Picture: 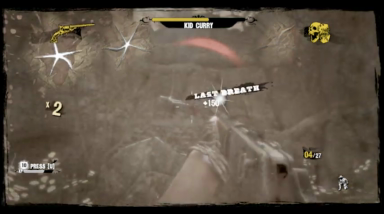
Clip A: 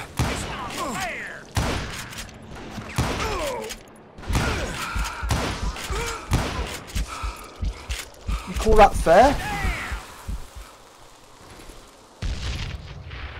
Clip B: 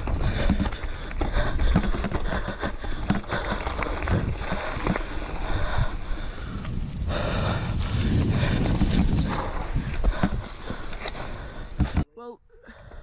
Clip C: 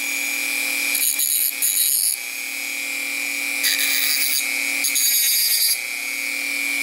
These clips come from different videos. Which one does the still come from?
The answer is A